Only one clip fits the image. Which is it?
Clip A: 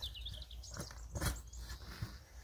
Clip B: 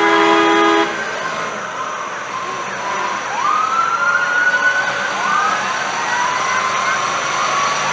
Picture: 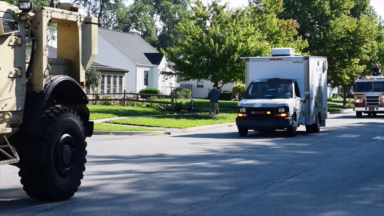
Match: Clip B